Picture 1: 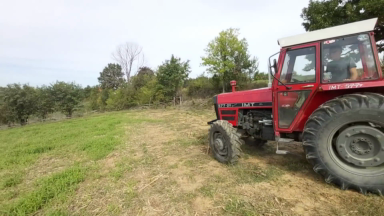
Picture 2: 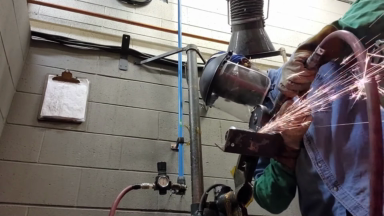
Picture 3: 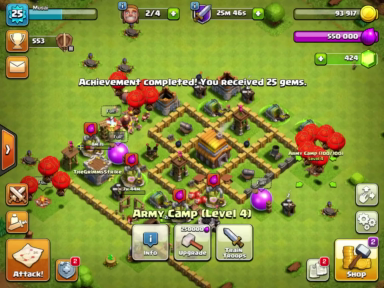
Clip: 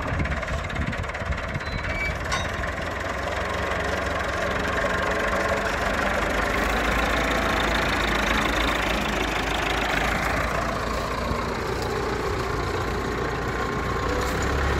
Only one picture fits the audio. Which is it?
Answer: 1